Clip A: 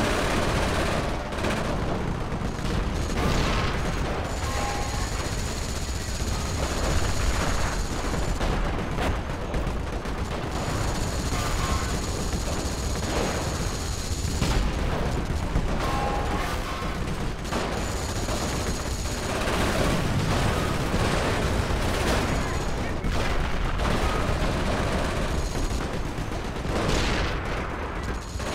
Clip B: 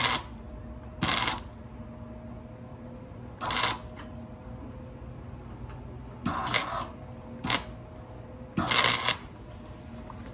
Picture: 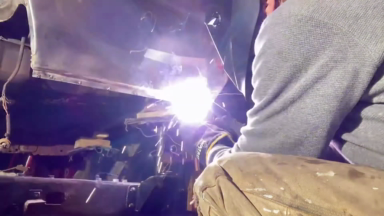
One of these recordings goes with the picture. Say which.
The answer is B